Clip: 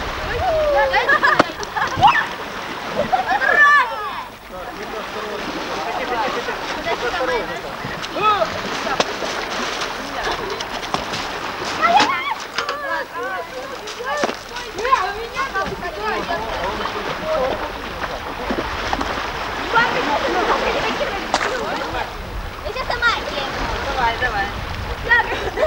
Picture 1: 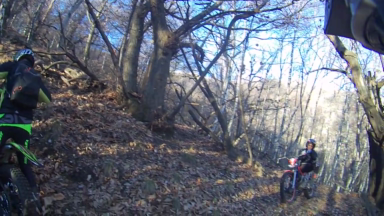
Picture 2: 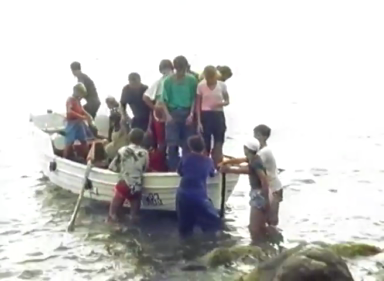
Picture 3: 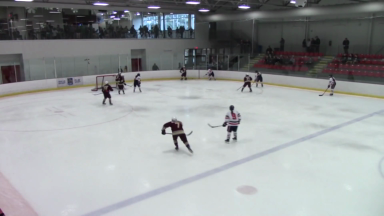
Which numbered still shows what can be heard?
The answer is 2